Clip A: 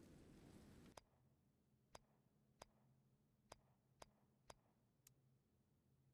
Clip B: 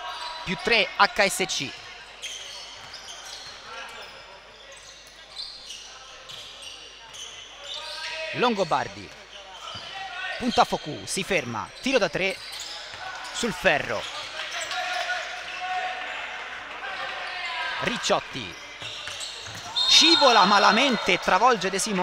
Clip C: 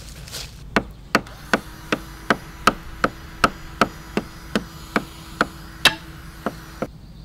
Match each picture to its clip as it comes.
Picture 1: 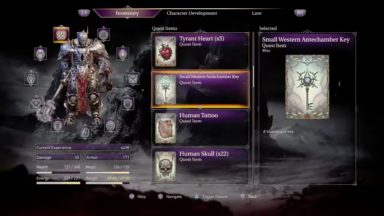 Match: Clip A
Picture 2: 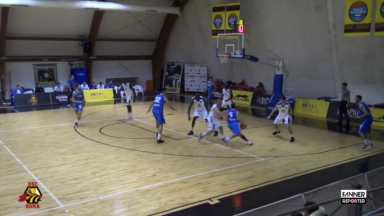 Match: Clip B